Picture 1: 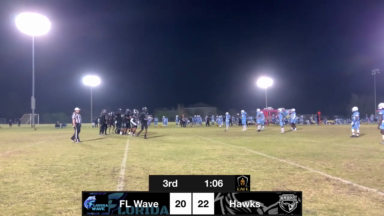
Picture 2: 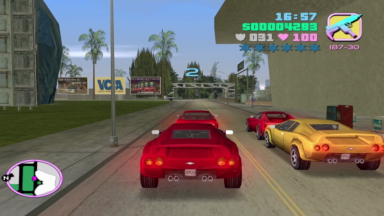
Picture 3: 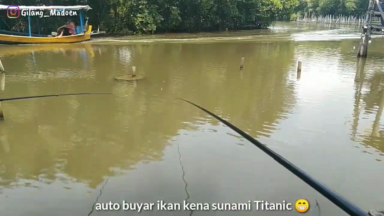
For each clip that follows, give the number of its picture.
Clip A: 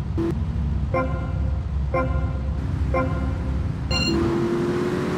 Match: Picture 2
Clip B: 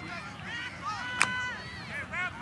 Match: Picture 1